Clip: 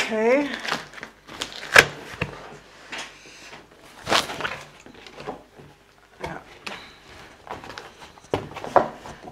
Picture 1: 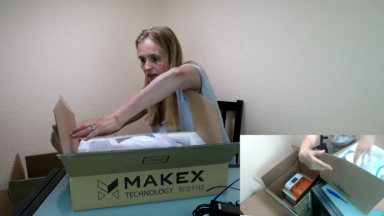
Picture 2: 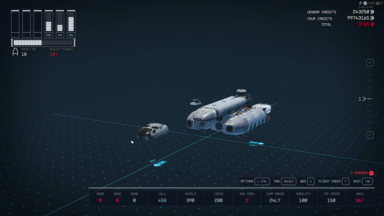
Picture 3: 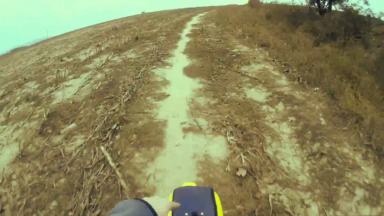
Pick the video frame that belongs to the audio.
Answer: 1